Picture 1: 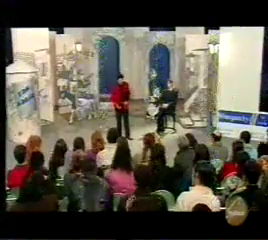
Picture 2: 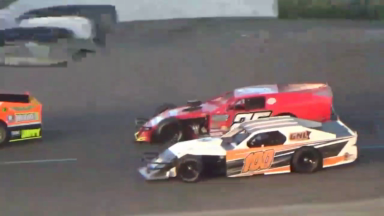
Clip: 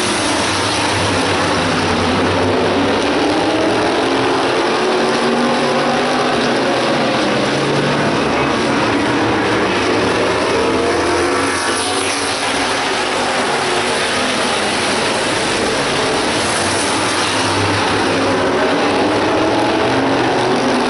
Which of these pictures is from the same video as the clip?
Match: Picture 2